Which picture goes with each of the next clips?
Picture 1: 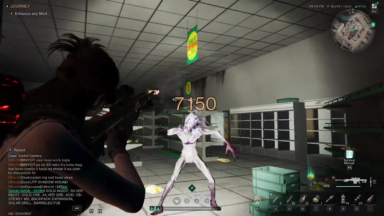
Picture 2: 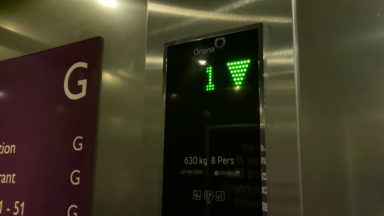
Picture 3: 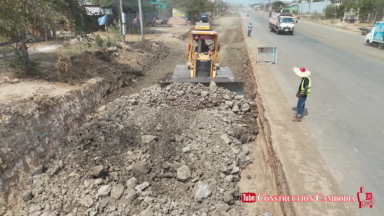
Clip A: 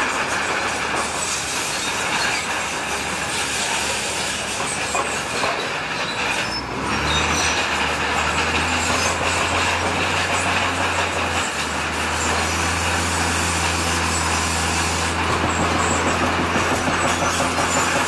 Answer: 3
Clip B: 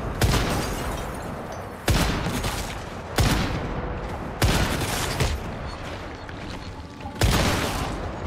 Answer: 1